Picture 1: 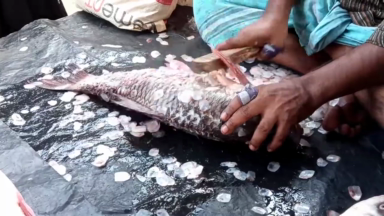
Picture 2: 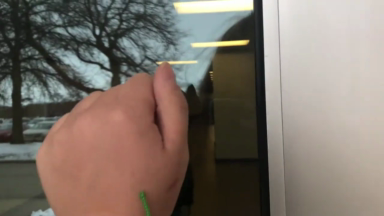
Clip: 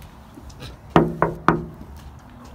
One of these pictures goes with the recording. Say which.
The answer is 2